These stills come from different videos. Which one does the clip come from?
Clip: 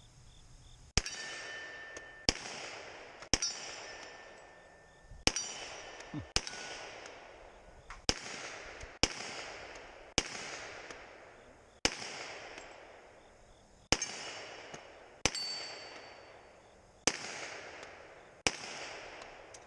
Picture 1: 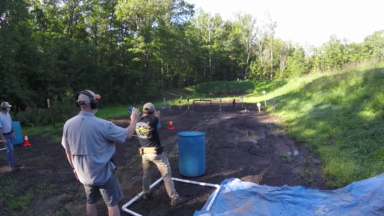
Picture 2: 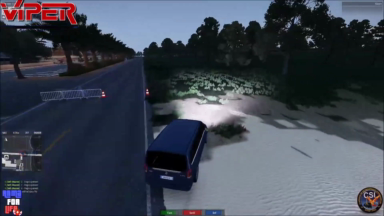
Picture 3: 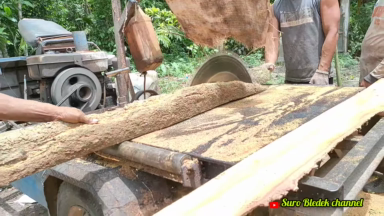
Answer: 1